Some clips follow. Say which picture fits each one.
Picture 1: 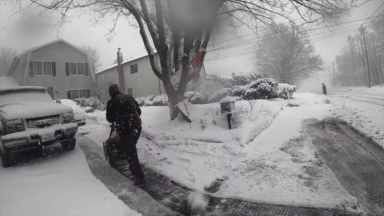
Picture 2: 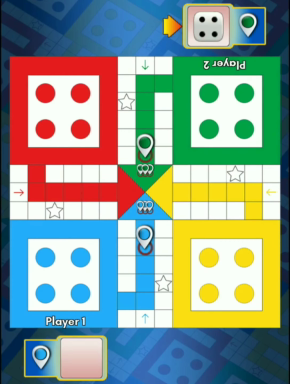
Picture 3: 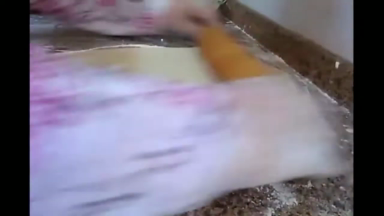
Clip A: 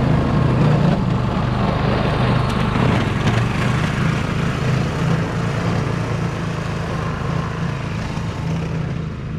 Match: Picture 1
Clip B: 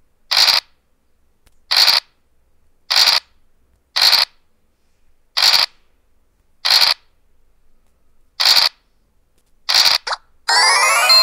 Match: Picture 2